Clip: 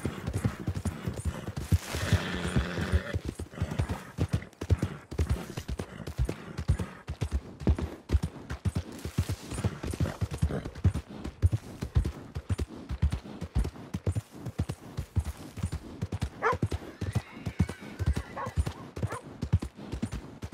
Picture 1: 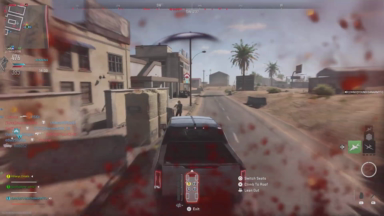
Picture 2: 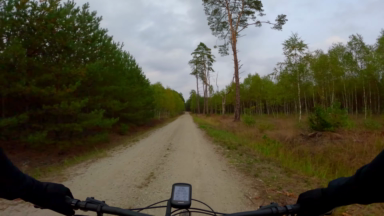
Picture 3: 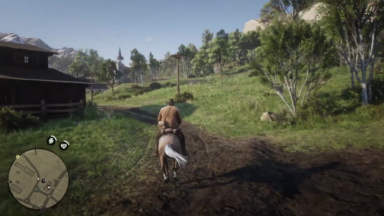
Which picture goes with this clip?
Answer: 3